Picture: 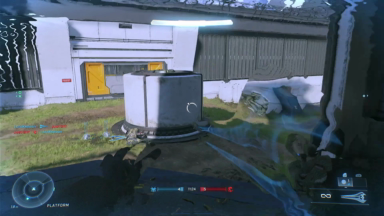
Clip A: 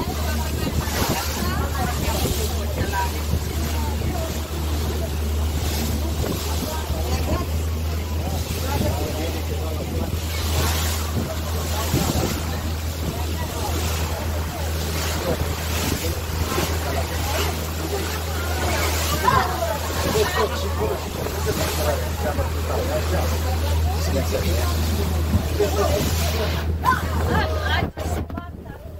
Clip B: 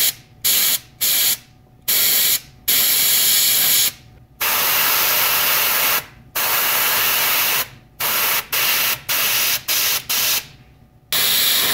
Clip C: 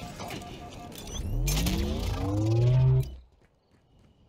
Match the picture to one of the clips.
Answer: C